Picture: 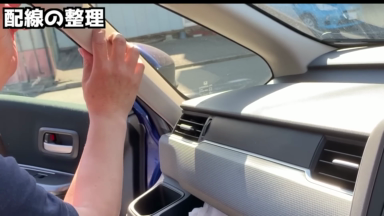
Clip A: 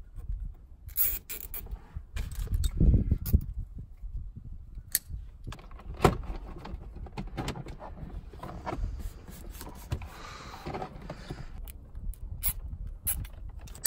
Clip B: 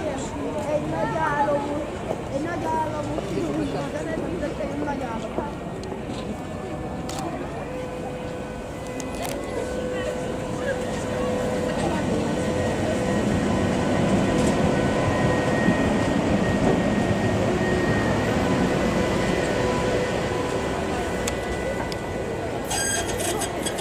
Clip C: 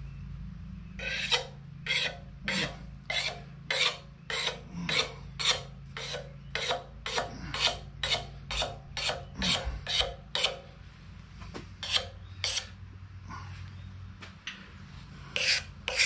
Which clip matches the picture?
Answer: A